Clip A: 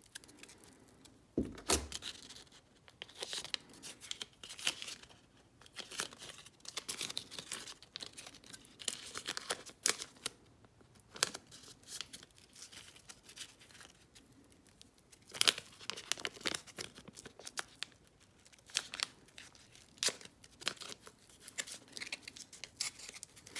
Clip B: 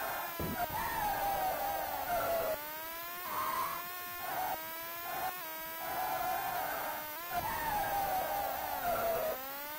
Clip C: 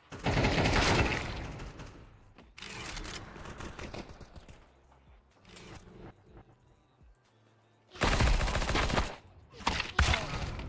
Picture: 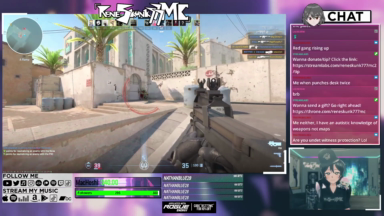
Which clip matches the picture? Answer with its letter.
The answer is C